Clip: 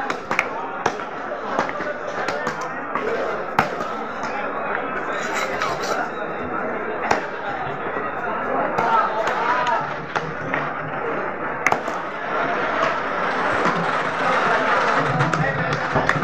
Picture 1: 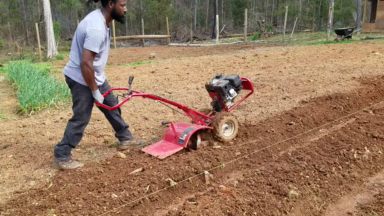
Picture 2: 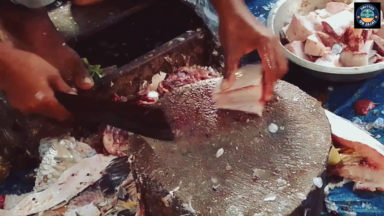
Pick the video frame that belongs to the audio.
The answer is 2